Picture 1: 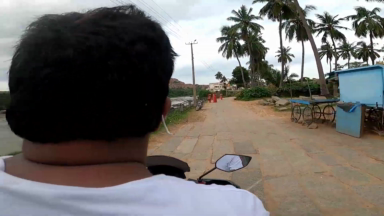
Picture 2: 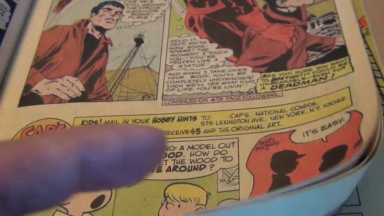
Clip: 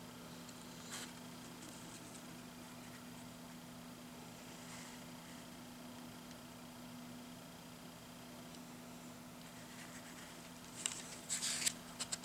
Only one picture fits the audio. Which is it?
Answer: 2